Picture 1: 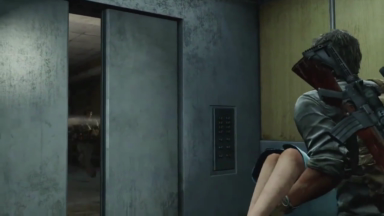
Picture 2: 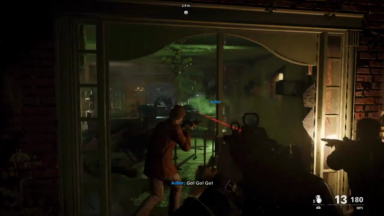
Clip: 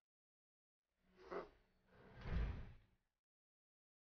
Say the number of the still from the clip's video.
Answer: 1